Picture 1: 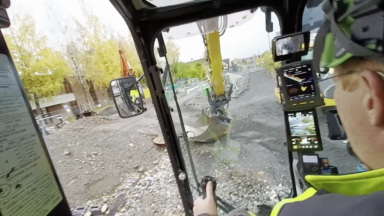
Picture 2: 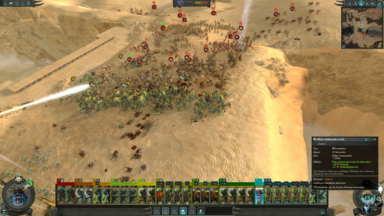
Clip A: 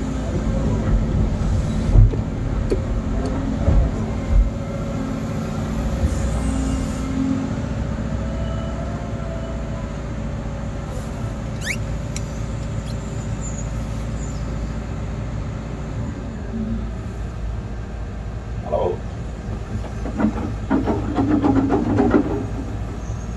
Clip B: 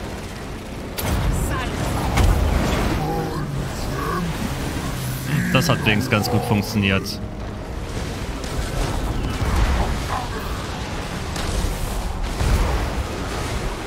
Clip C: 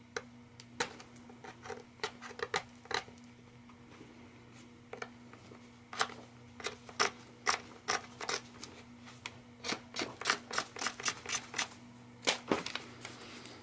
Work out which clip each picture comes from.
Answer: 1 A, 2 B